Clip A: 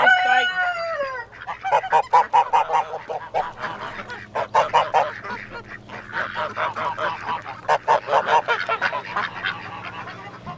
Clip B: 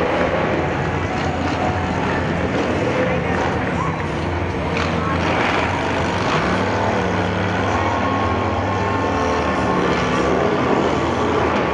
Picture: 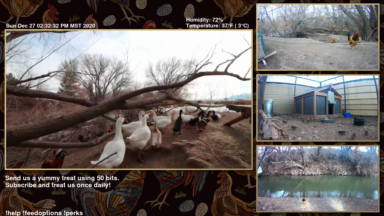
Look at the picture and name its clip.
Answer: A